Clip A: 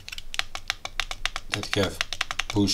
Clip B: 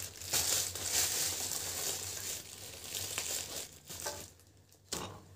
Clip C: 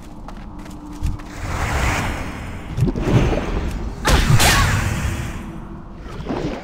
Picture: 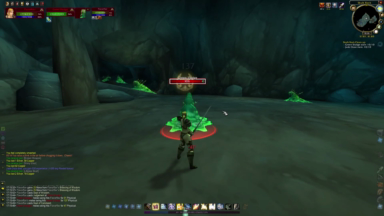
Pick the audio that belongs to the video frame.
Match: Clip C